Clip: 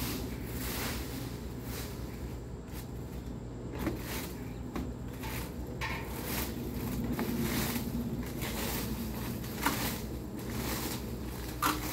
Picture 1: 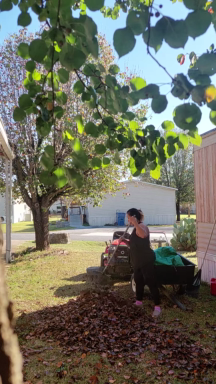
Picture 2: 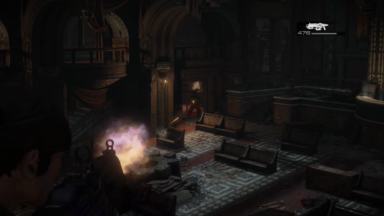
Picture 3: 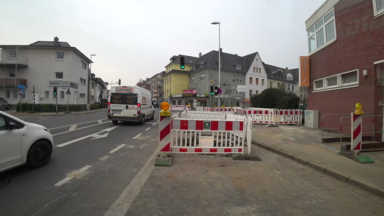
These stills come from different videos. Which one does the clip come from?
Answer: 1